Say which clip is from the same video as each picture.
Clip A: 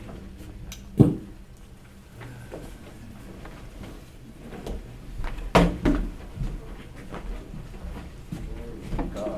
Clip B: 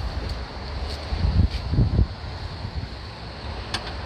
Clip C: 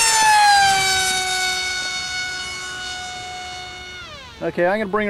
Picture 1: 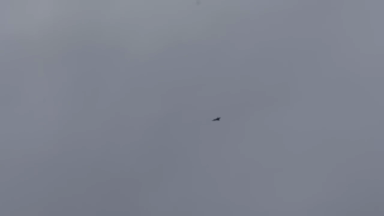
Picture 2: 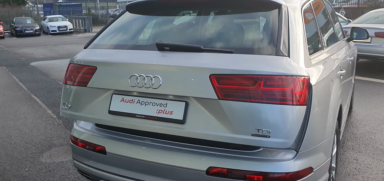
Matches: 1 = C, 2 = B